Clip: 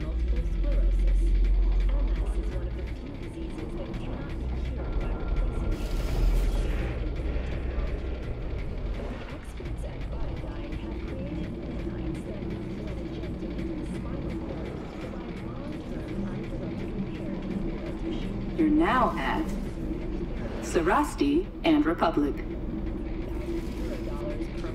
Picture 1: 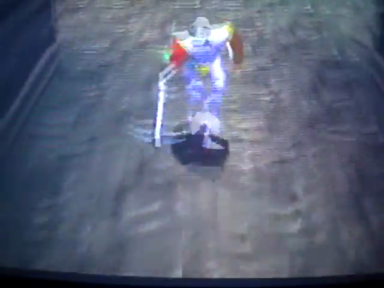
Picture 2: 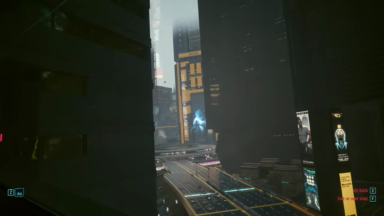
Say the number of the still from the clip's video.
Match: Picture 2